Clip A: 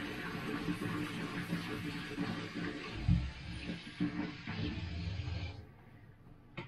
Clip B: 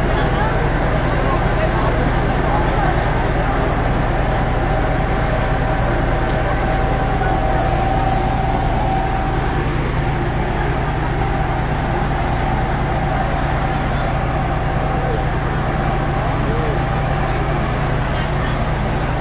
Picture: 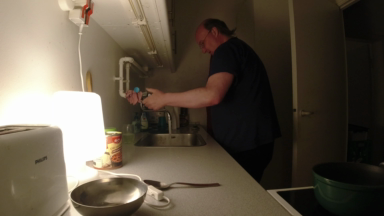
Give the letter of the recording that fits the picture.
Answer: A